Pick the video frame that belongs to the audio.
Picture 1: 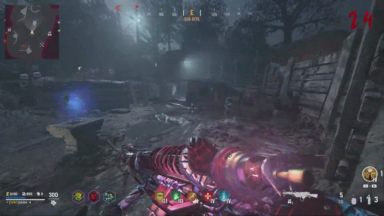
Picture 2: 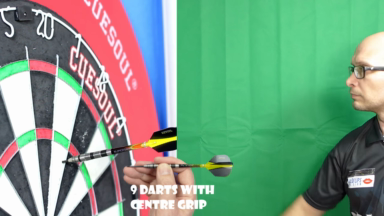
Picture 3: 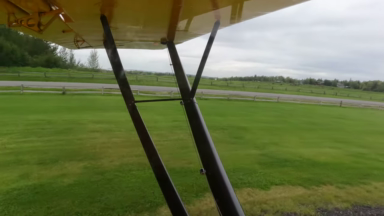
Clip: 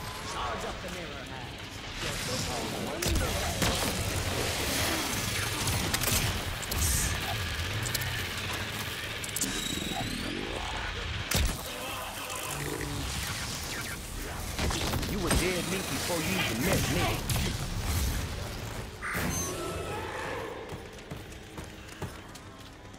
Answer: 1